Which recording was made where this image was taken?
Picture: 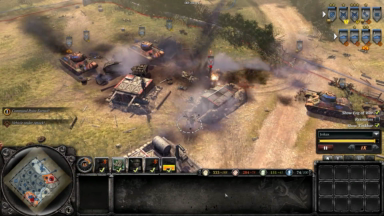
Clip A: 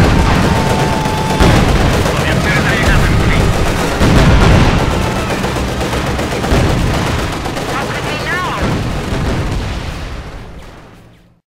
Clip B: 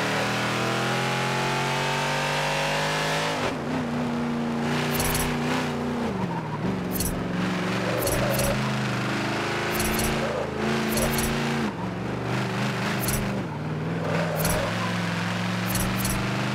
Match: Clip A